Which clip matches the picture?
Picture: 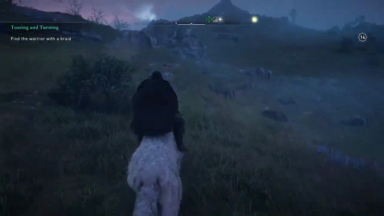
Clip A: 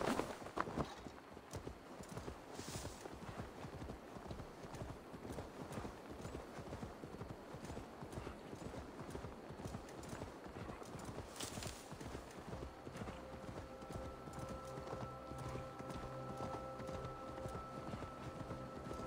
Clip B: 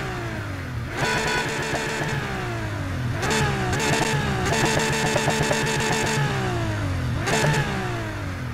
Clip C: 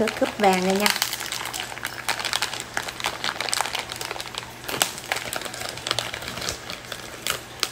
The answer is A